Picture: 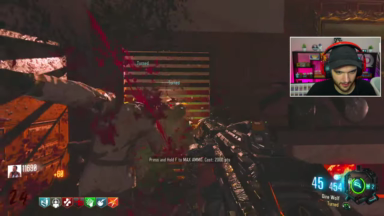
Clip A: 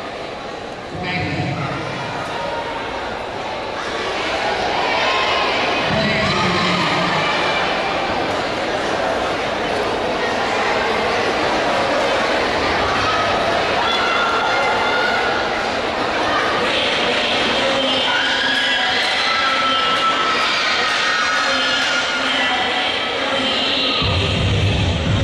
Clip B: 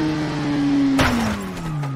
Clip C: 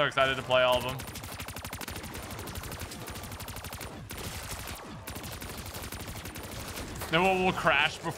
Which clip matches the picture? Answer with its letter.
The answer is C